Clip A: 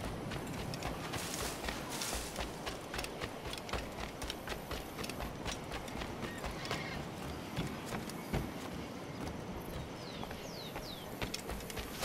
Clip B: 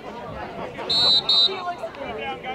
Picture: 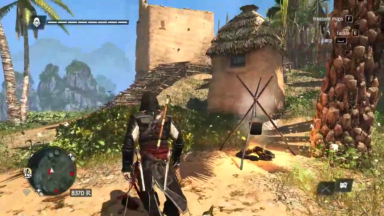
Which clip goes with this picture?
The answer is A